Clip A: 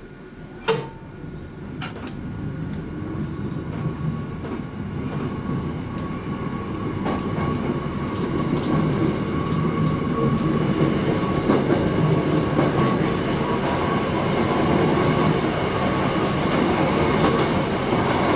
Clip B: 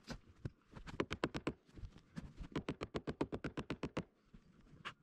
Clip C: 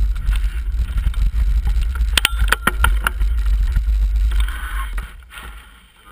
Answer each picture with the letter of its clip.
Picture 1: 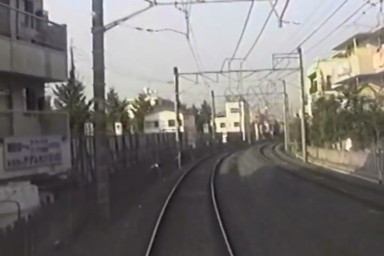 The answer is A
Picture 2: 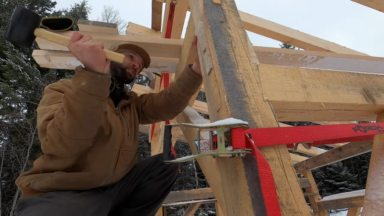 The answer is B